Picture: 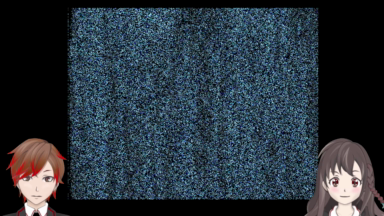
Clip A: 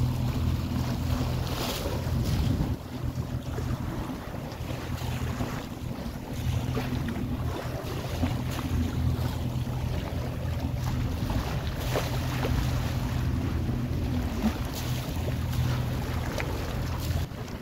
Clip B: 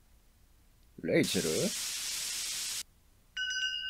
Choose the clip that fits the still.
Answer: B